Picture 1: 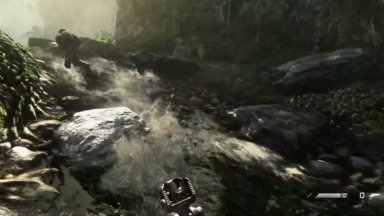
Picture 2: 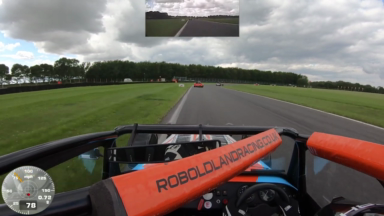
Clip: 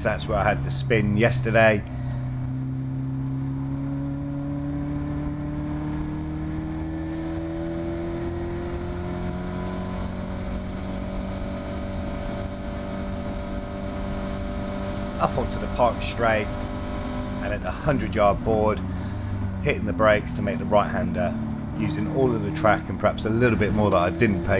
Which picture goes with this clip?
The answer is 2